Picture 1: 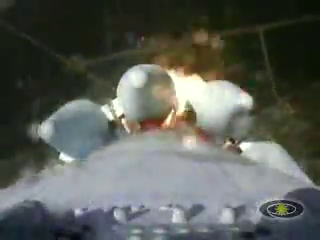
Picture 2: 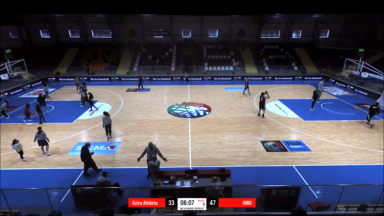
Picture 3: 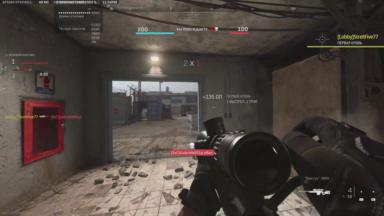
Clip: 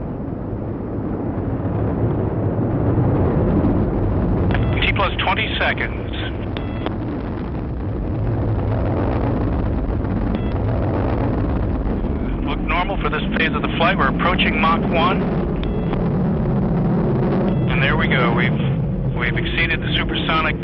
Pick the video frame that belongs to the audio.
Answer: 1